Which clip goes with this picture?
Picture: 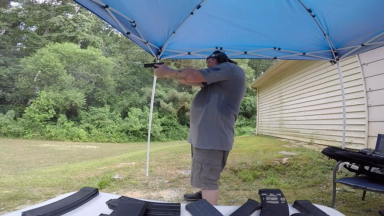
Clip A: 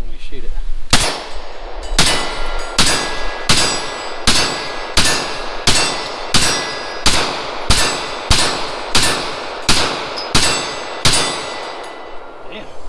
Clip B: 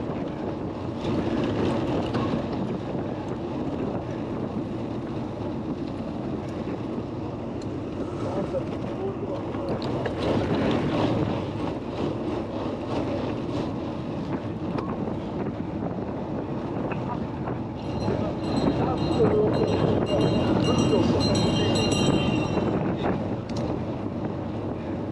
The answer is A